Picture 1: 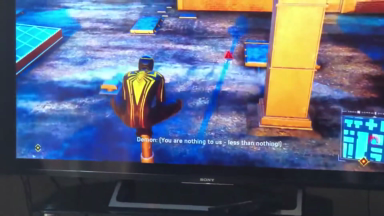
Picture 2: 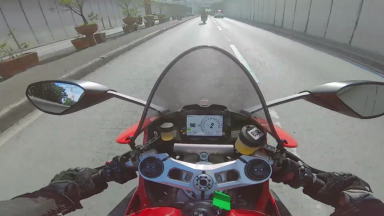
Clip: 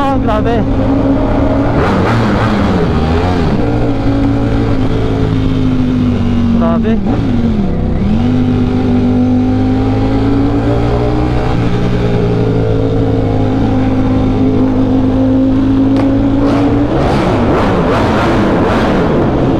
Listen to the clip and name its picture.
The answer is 2